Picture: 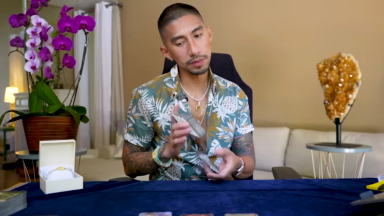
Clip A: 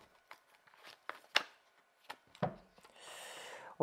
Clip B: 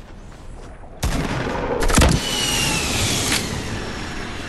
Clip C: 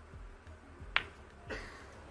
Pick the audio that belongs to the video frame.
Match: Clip A